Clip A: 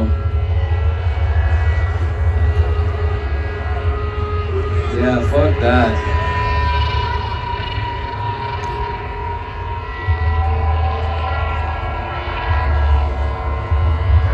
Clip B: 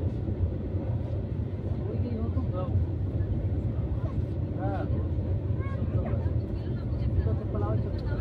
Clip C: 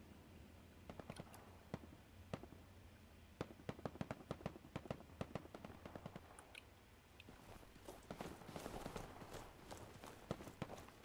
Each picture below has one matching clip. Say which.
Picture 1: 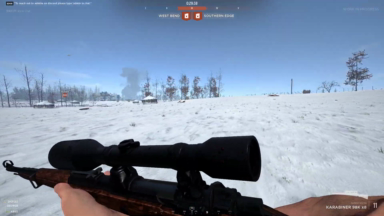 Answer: C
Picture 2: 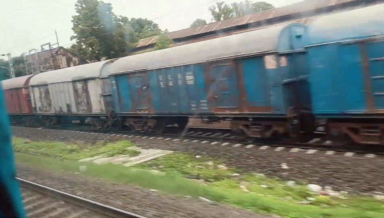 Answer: B